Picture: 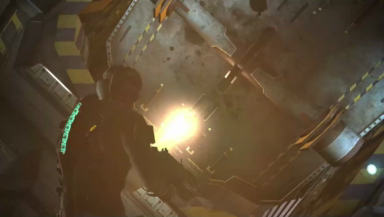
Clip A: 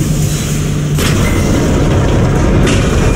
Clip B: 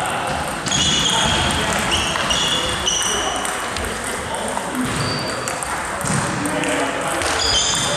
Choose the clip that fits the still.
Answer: A